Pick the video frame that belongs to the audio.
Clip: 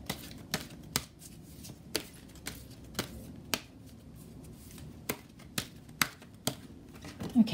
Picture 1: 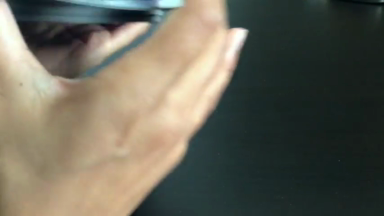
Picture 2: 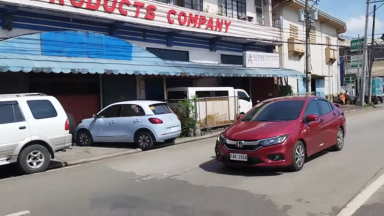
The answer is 1